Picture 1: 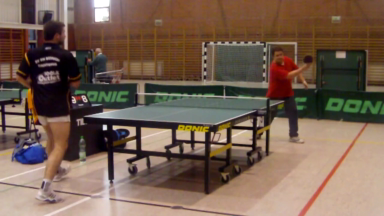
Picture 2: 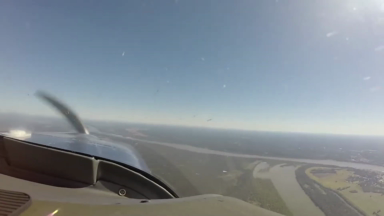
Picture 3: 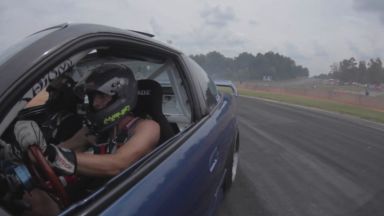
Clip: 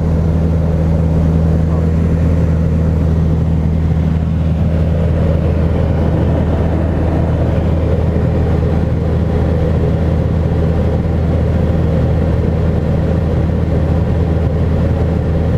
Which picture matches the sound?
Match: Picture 2